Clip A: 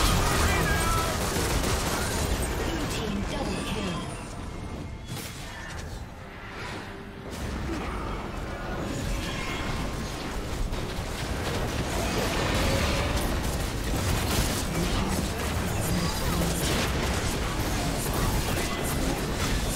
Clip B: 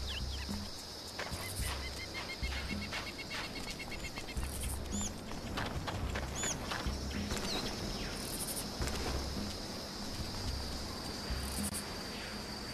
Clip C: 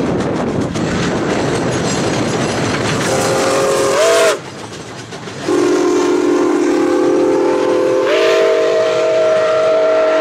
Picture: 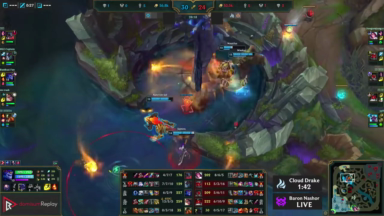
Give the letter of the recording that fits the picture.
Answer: A